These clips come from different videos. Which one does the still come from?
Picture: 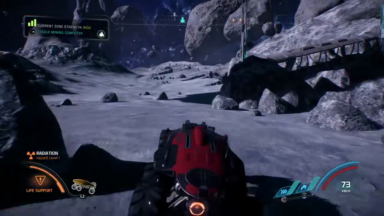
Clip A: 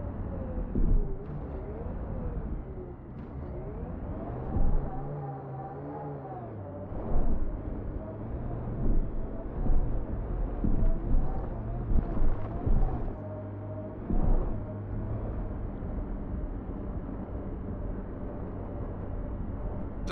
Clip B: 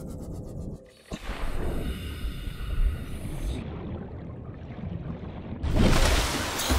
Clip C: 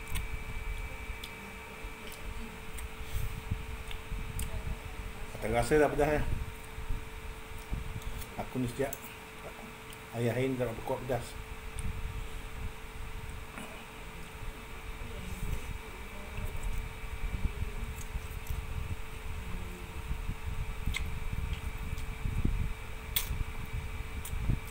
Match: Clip A